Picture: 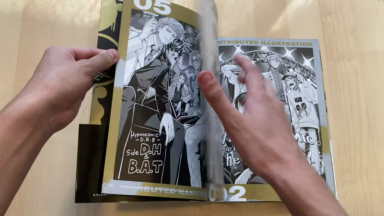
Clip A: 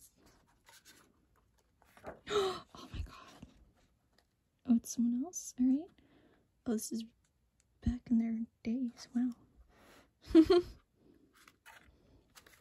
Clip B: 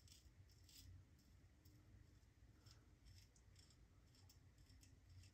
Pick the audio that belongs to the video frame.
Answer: A